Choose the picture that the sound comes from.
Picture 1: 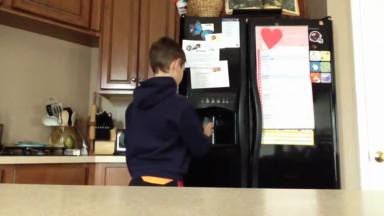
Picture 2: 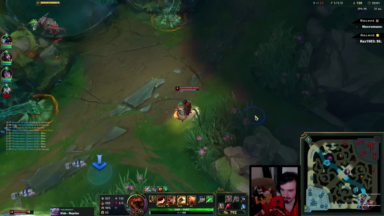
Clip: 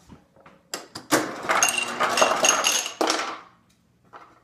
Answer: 1